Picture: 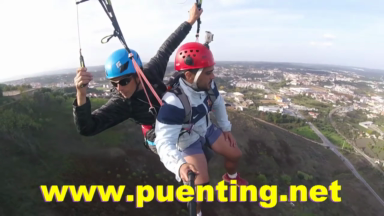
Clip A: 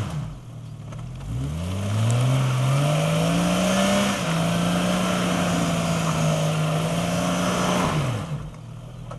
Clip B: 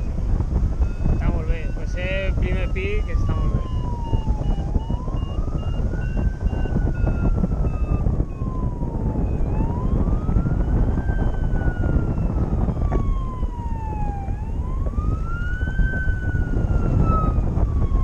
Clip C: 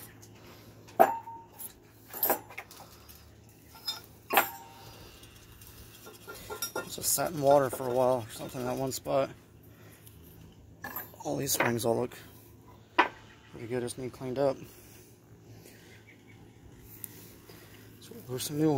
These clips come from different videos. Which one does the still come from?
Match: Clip B